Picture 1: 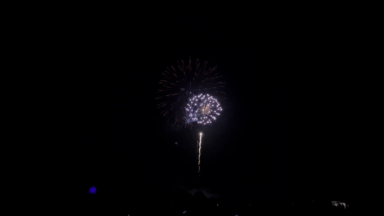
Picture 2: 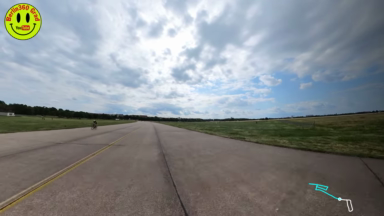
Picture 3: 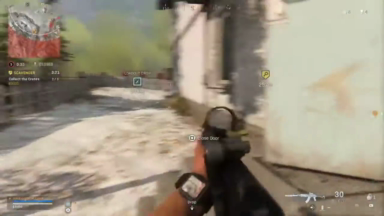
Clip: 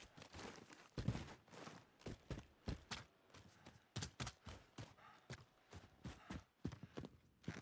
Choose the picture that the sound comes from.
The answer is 3